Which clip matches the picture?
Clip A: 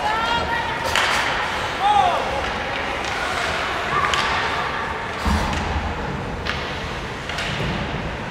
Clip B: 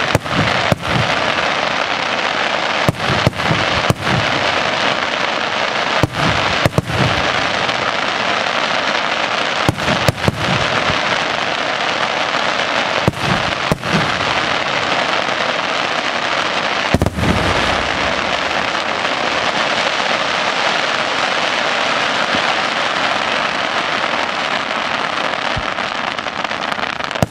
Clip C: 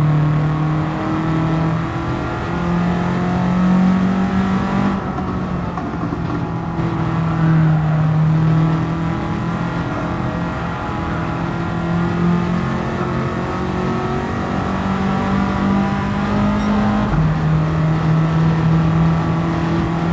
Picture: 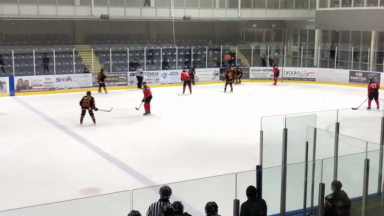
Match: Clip A